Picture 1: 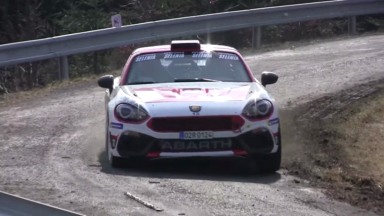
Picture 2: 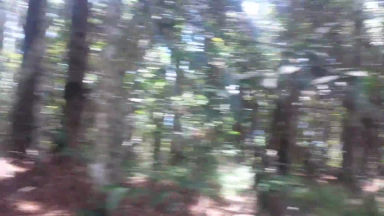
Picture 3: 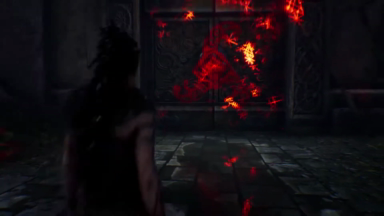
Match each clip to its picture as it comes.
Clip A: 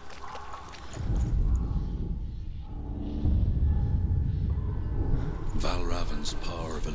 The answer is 3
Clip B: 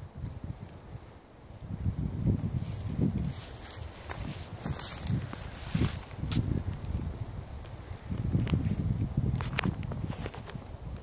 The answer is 2